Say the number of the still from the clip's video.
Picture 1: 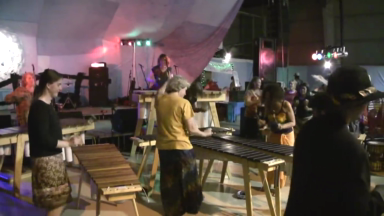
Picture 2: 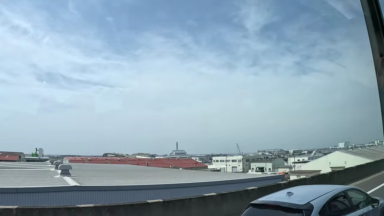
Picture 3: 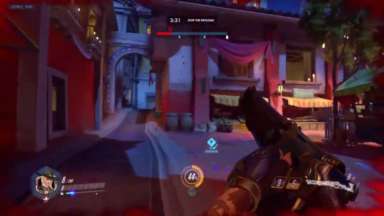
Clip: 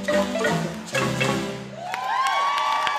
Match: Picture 1